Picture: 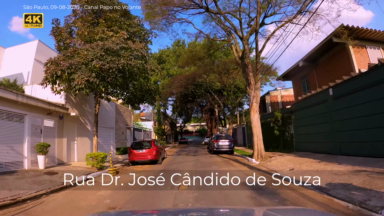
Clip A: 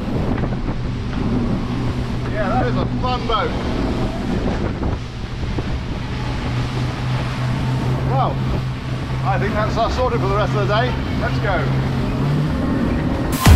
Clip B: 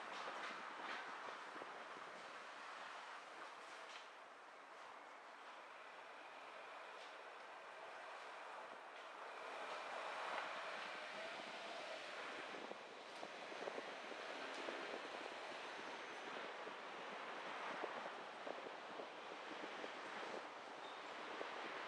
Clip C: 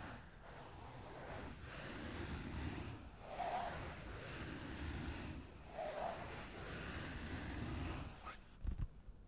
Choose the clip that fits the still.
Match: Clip B